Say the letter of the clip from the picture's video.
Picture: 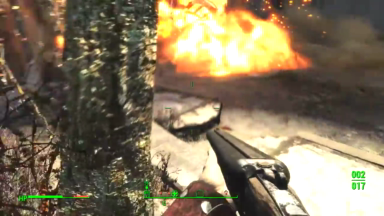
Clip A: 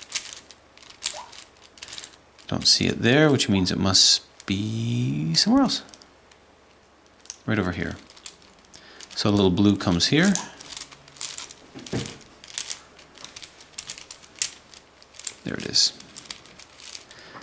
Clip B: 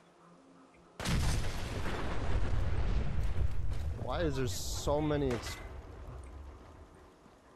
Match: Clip B